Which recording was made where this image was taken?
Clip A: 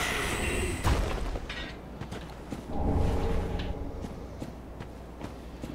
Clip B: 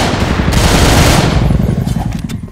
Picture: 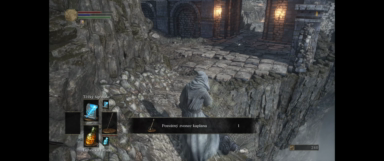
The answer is A